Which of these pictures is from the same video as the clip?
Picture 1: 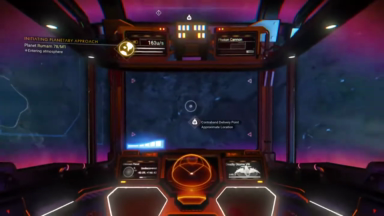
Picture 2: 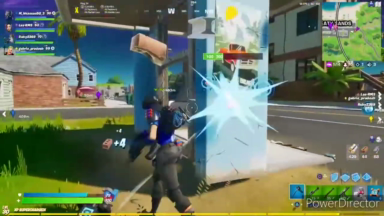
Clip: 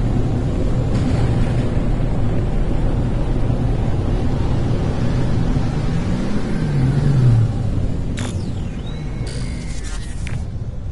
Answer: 1